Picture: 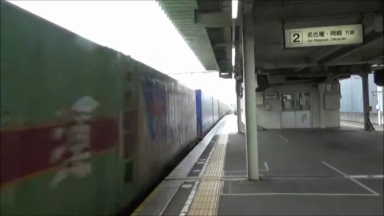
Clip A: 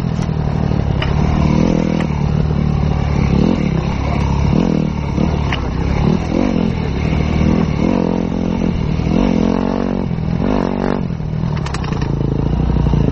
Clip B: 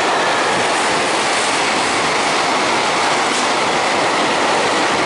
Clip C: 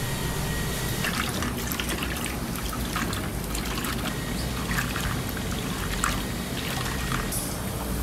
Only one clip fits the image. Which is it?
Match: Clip B